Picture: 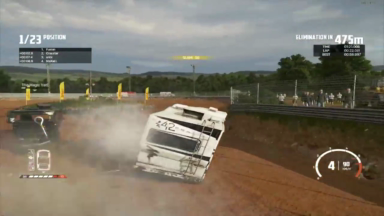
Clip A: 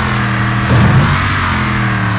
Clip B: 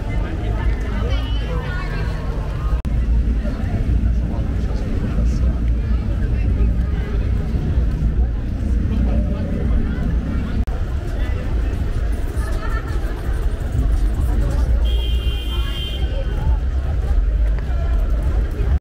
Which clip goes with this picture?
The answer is A